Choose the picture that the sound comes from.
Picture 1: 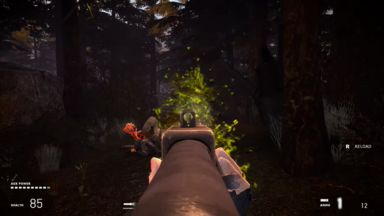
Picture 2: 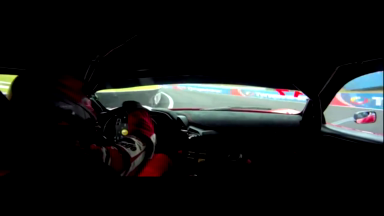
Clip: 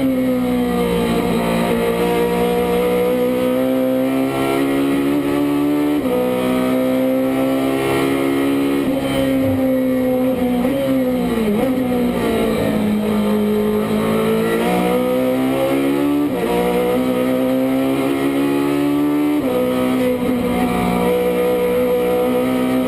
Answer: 2